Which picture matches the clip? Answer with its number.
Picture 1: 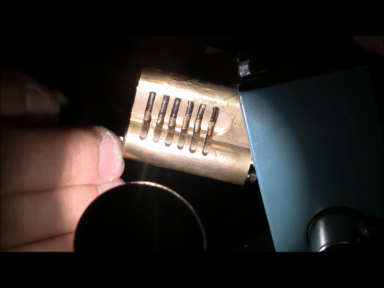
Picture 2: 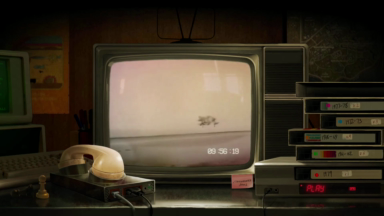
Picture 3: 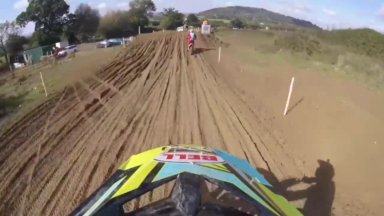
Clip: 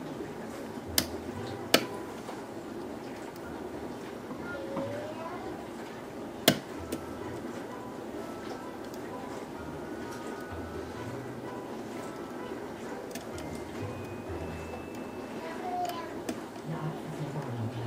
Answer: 1